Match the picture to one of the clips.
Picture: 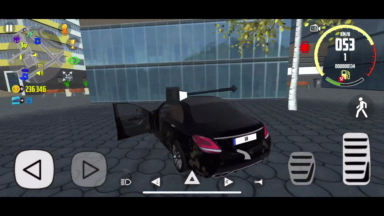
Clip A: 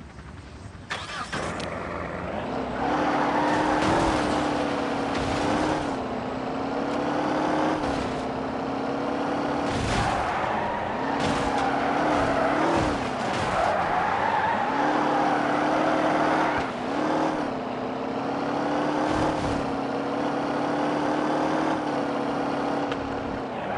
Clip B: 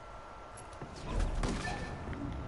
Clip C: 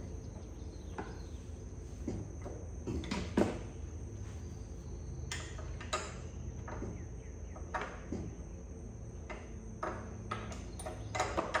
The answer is A